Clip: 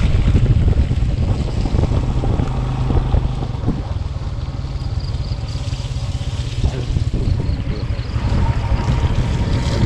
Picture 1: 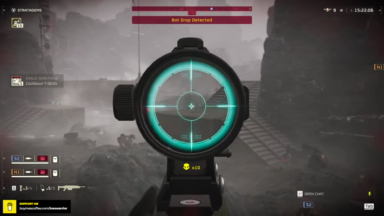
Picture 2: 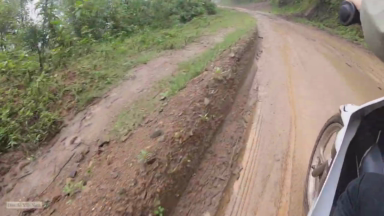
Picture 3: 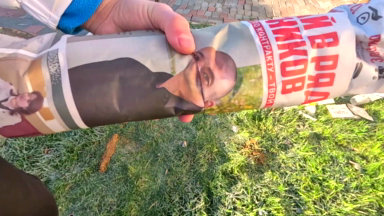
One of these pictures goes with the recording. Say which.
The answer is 2